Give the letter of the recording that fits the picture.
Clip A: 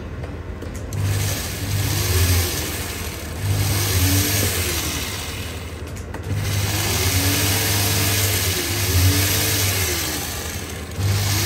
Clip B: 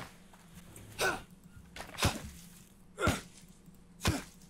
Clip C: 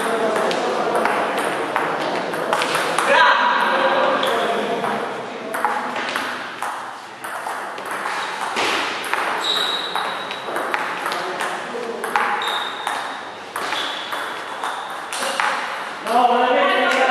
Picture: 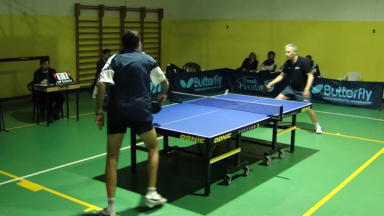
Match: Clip C